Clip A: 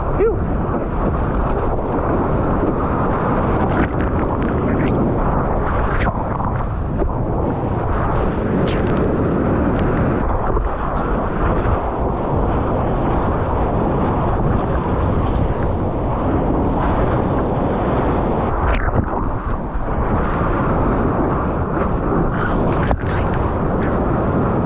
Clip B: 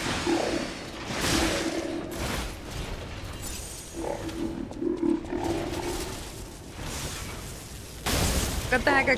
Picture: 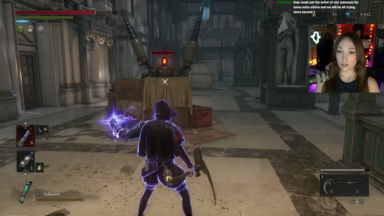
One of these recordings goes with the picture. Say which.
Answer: B